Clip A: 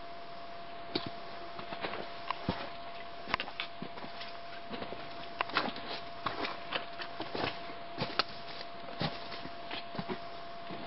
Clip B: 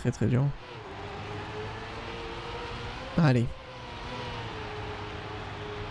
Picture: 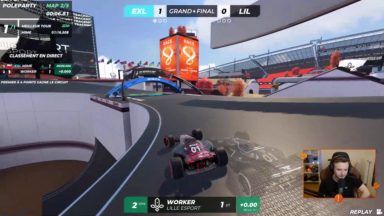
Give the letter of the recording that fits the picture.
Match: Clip B